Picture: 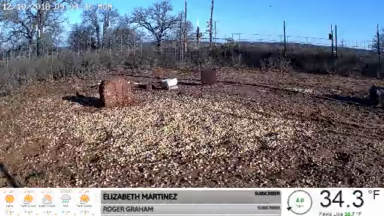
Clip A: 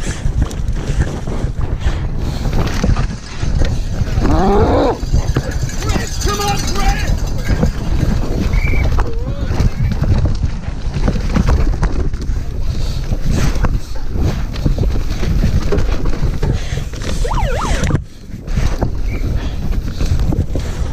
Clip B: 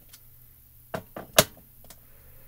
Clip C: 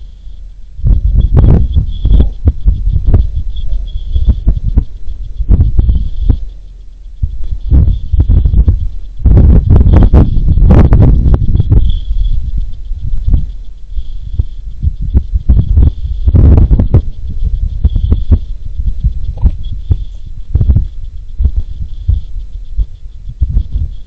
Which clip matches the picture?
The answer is C